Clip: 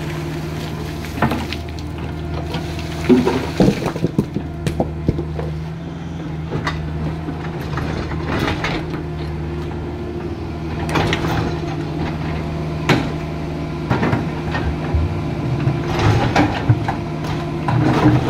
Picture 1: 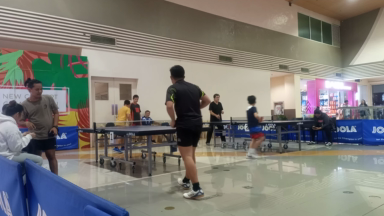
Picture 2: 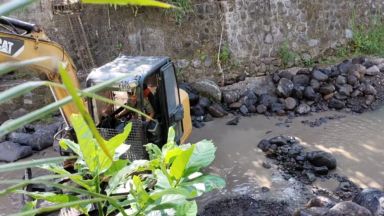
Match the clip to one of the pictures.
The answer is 2